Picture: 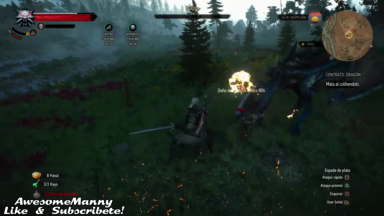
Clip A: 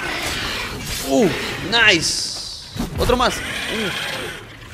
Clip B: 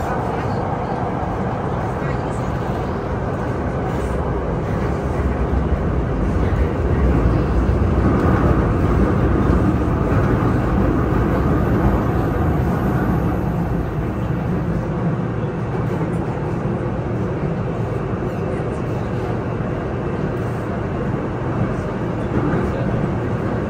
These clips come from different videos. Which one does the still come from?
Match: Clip A